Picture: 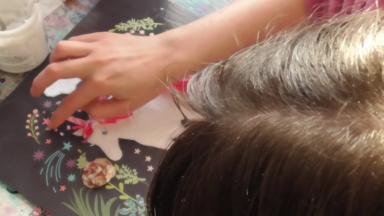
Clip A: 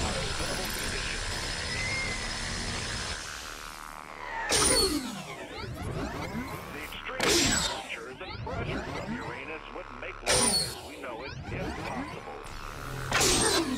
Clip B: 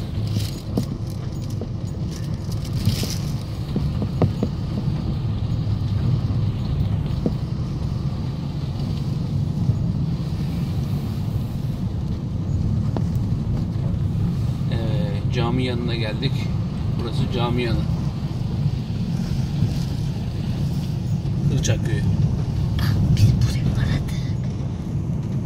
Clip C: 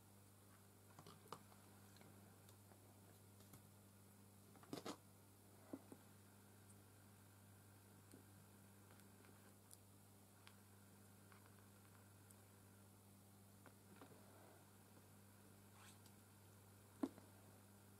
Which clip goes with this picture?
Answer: C